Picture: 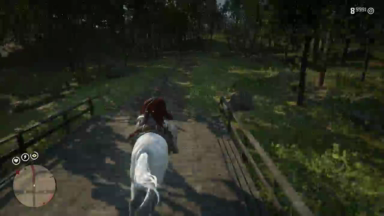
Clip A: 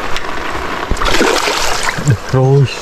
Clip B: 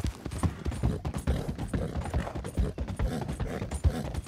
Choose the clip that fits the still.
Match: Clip B